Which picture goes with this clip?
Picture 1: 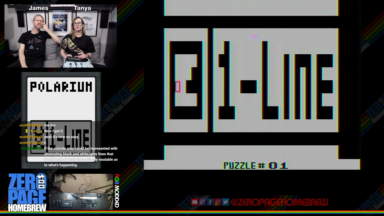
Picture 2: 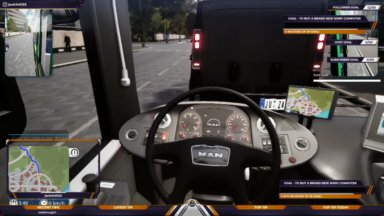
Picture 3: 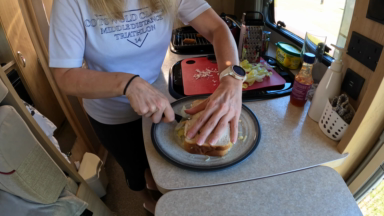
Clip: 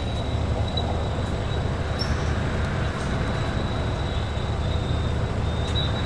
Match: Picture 2